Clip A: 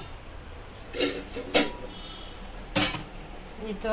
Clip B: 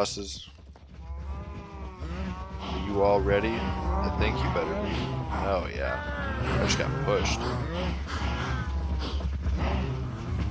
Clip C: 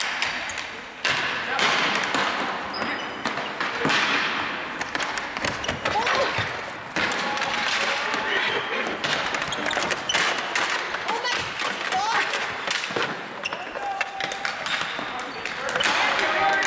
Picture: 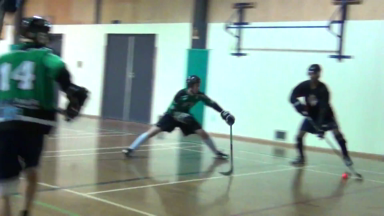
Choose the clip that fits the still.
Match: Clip C